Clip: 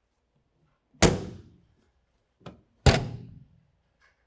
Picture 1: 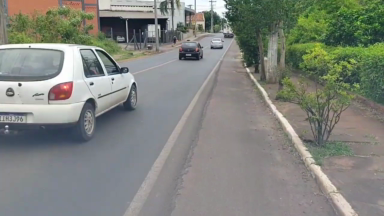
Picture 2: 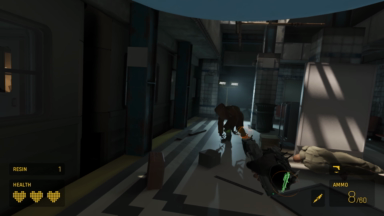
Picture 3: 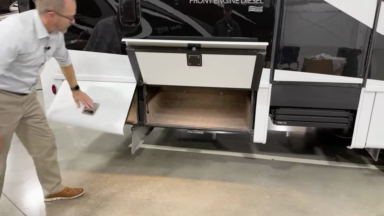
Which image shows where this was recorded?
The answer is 3